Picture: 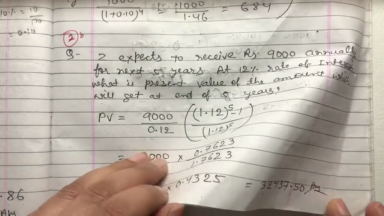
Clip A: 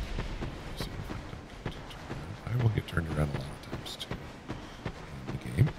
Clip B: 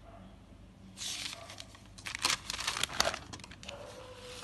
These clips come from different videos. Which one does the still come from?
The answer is B